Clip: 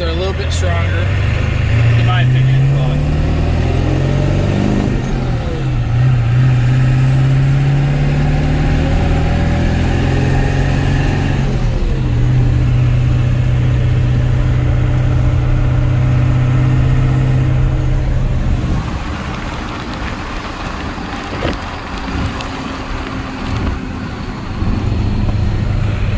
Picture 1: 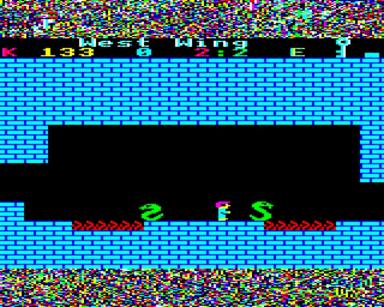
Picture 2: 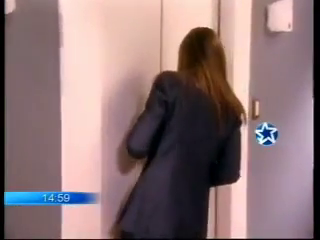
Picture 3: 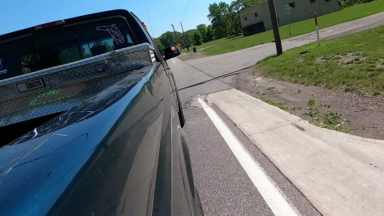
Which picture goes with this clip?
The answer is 3